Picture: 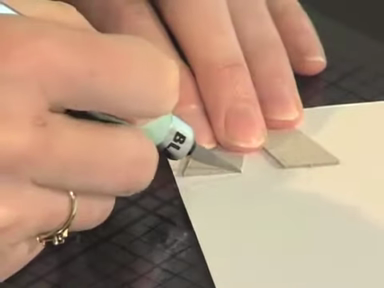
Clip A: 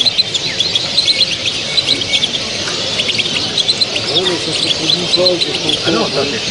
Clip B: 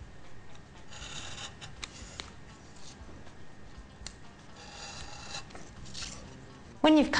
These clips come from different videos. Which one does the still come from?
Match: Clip B